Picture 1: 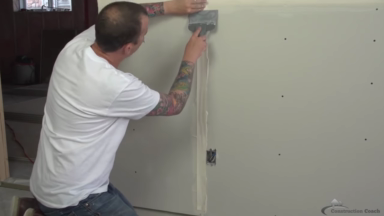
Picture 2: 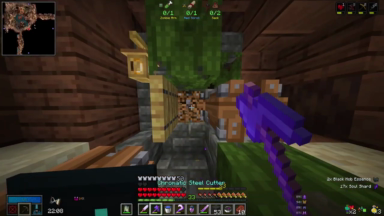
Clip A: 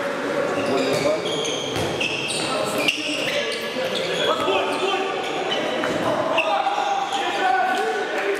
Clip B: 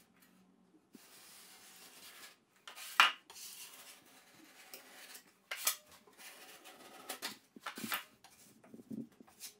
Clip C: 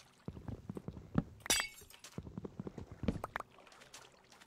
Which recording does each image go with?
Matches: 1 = B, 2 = C